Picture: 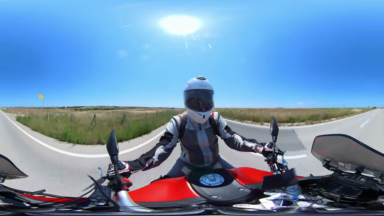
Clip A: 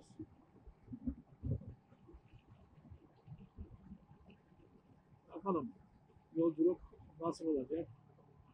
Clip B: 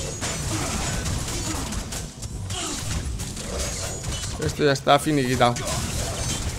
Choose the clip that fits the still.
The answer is A